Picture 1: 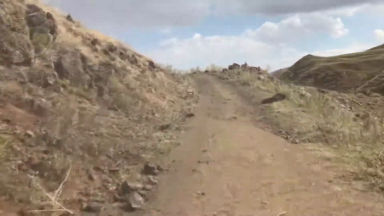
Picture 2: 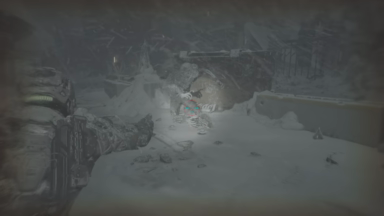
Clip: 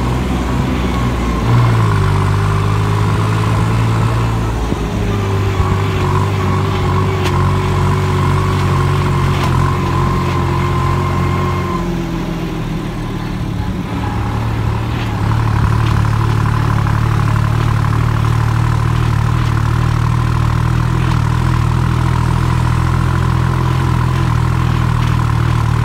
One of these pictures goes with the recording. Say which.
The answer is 1